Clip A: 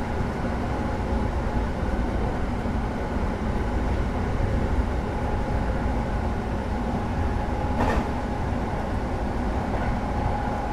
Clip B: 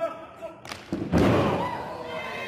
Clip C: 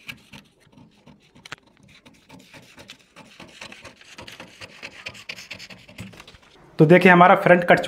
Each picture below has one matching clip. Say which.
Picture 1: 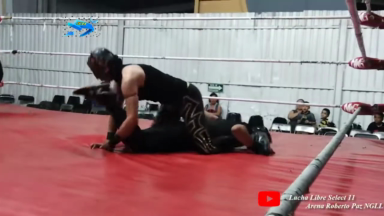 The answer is B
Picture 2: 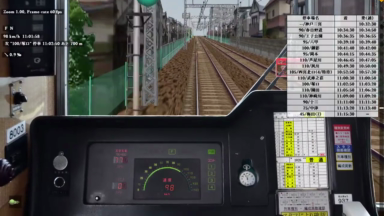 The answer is A